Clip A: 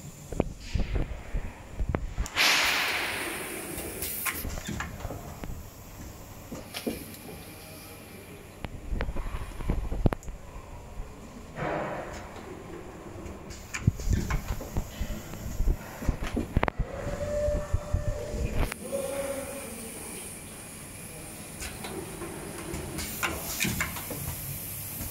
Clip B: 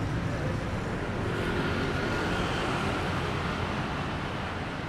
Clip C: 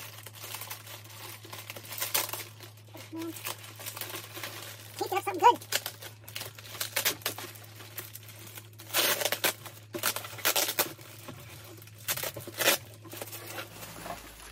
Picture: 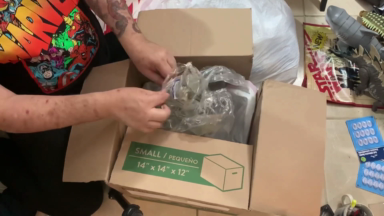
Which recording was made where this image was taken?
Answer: C